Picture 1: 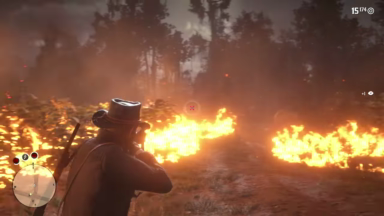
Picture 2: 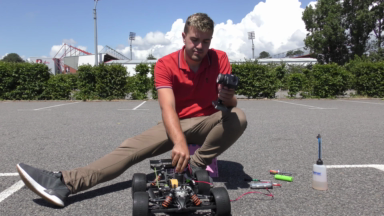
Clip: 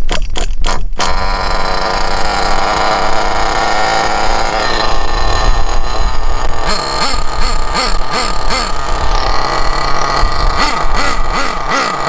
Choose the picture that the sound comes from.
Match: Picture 2